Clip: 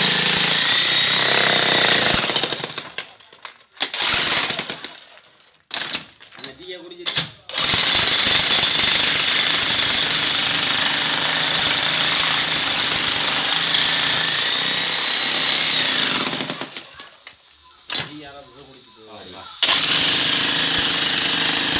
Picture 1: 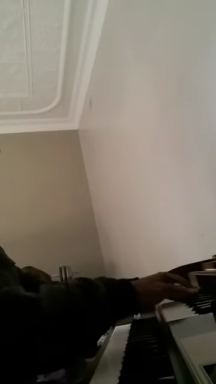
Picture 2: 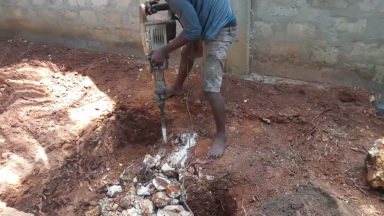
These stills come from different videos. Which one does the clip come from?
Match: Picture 2